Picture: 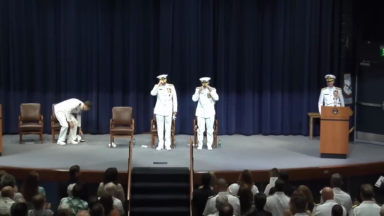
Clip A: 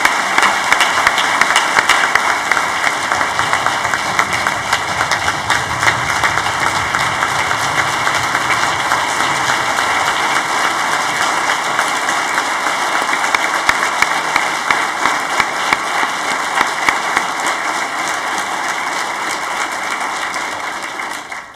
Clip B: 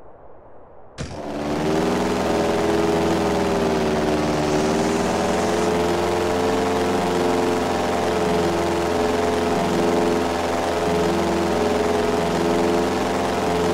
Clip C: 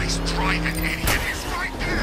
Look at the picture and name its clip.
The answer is A